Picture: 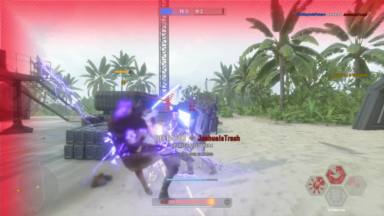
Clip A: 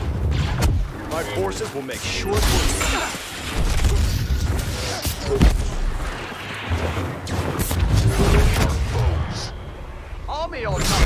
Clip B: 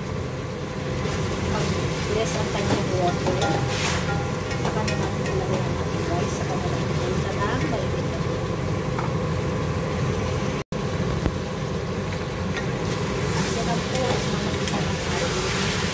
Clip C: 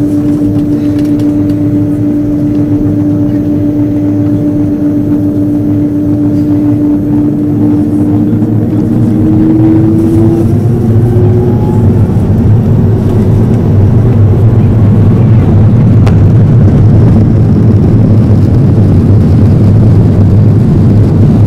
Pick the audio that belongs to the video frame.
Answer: A